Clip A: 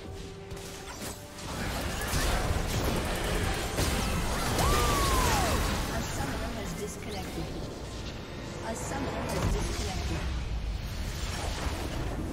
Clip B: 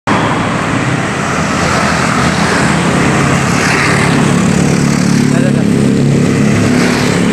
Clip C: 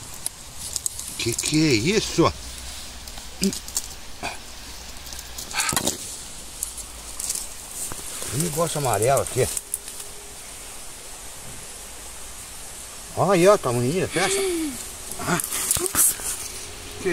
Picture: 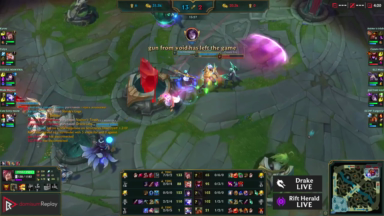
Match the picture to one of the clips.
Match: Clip A